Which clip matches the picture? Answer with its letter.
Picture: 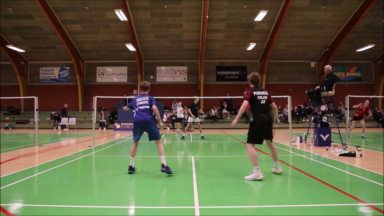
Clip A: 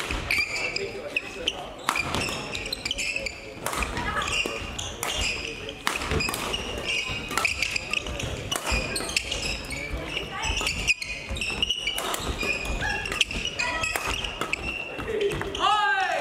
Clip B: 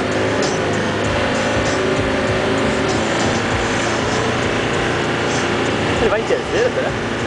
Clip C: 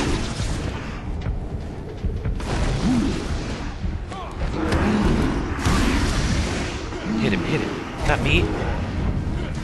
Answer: A